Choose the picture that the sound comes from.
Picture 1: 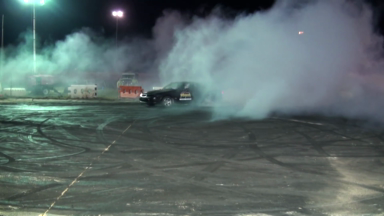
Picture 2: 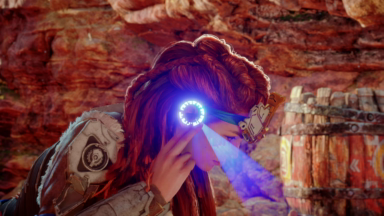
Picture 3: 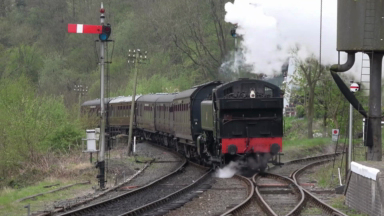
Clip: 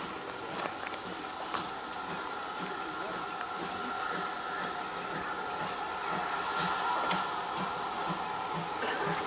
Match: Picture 3